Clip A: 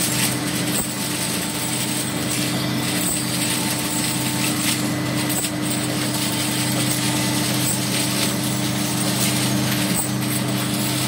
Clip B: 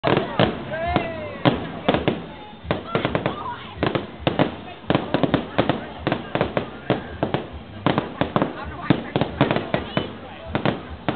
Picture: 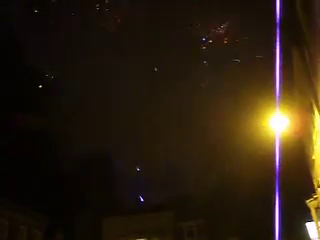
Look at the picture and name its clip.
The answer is B